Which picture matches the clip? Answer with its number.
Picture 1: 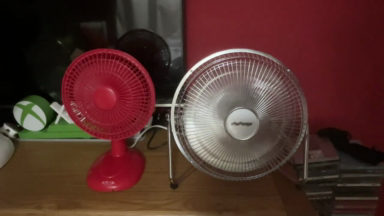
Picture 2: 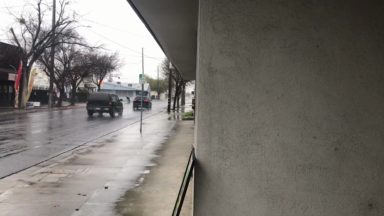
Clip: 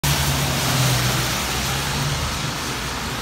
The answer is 2